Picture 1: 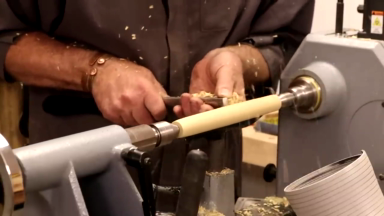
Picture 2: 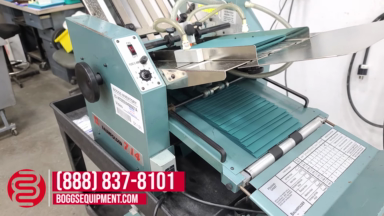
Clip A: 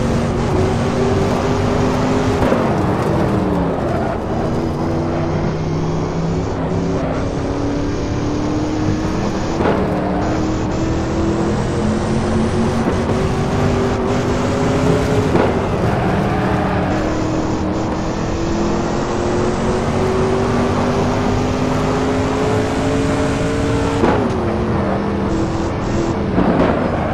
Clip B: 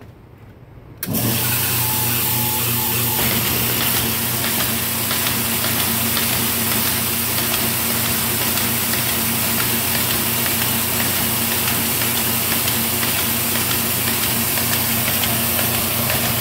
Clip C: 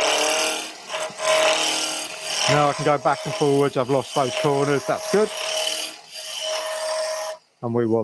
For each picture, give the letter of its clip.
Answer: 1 C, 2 B